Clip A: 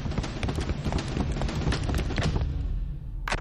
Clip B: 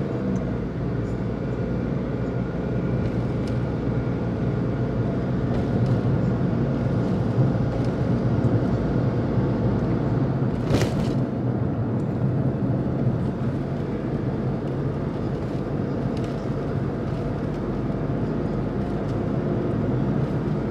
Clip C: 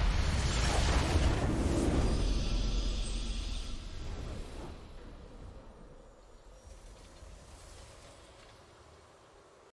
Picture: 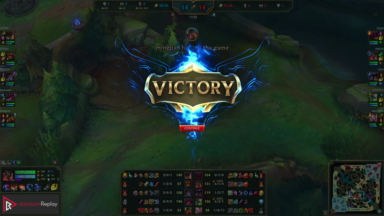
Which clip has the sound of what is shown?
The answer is C